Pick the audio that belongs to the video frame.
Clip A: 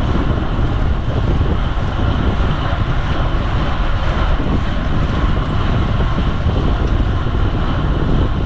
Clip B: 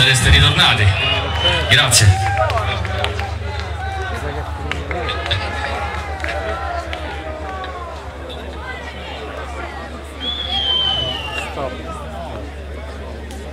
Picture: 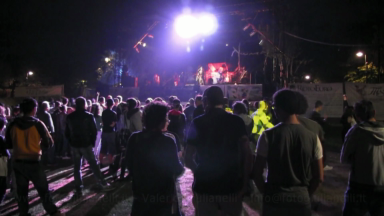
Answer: B